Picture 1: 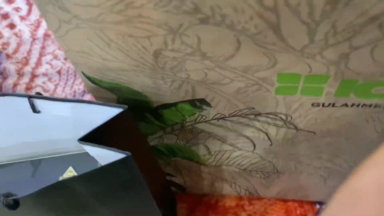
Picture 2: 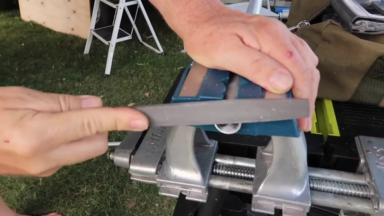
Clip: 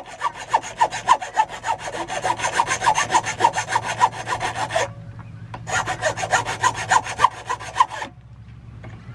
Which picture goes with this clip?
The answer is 2